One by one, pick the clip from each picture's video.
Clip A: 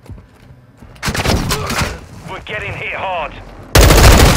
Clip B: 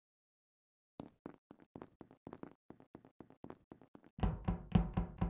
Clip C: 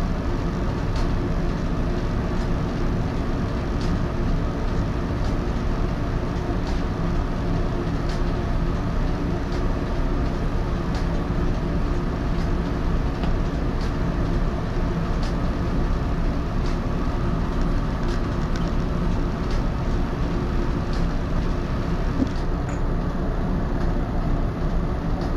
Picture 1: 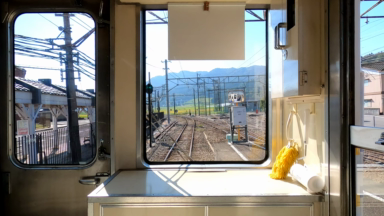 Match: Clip C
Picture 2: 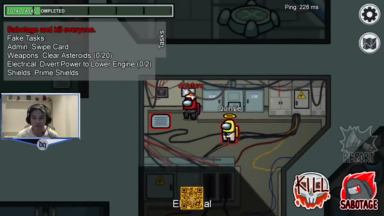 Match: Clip B